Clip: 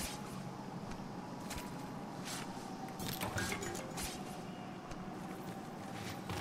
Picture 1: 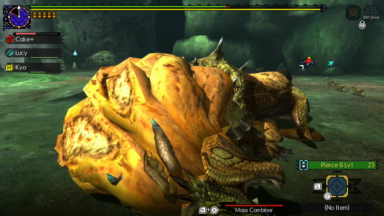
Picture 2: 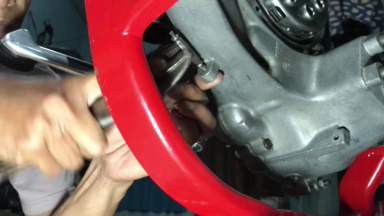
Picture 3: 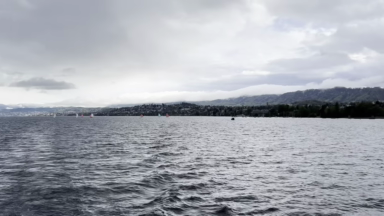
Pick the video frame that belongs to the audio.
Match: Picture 1